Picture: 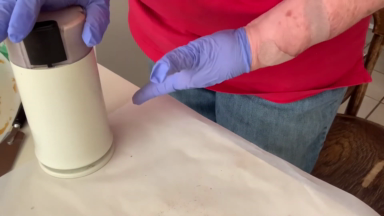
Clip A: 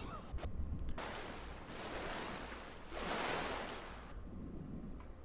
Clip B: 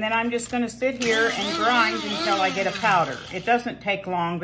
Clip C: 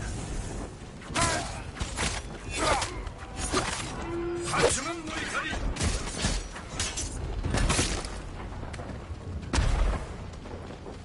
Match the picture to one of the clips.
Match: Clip B